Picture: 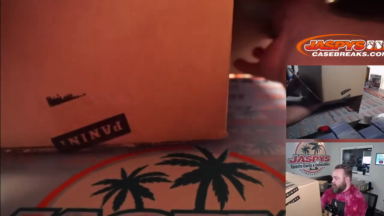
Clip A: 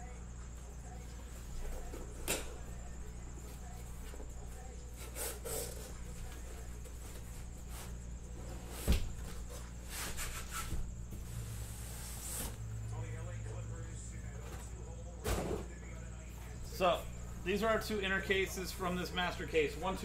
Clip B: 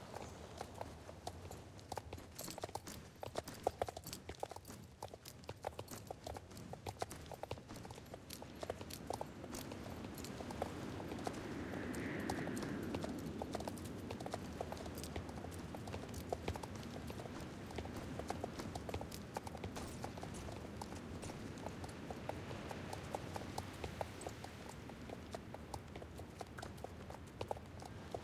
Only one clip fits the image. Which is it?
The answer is A